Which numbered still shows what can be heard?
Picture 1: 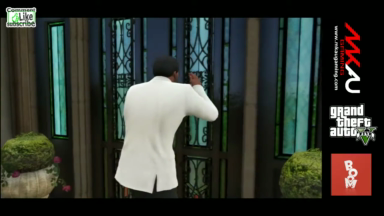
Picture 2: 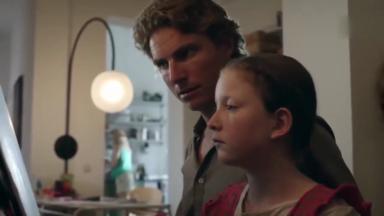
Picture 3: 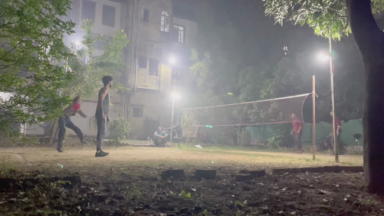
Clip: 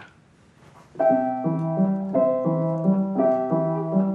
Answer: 2